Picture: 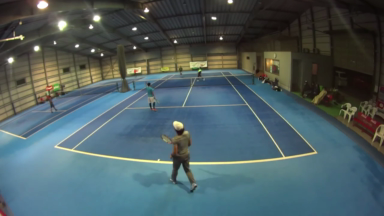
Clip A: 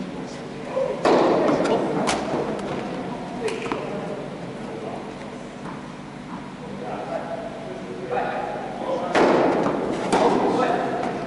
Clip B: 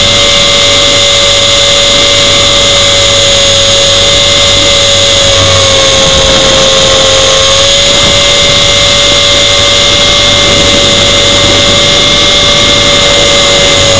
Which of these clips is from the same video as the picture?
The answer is A